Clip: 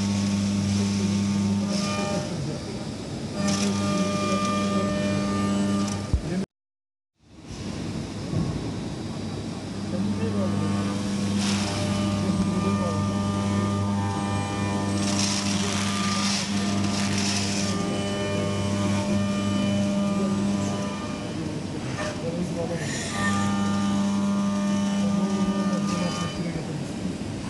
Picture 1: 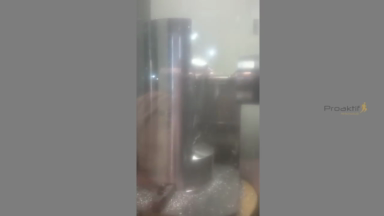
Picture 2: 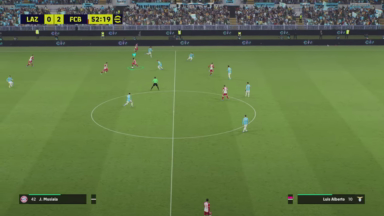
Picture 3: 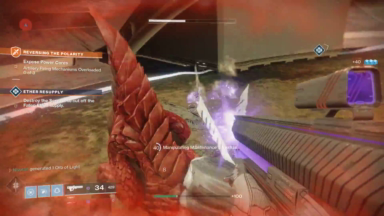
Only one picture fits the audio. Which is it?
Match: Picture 1